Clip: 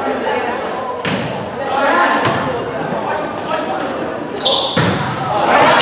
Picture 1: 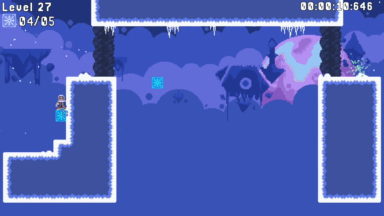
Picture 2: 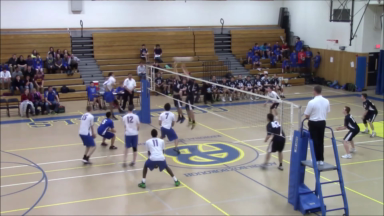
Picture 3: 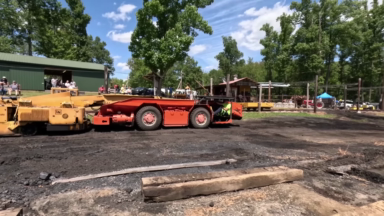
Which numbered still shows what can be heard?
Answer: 2